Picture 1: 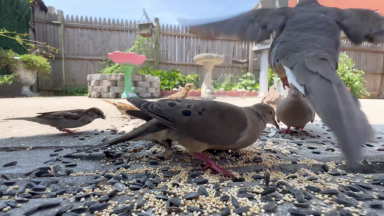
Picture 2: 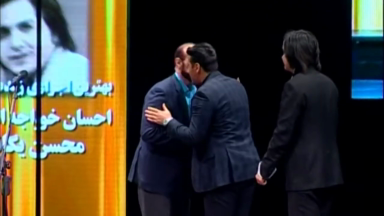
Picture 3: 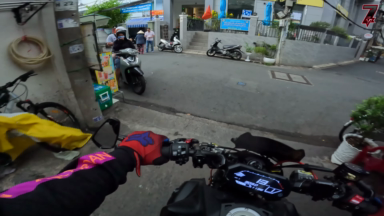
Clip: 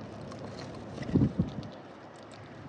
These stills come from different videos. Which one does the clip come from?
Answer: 1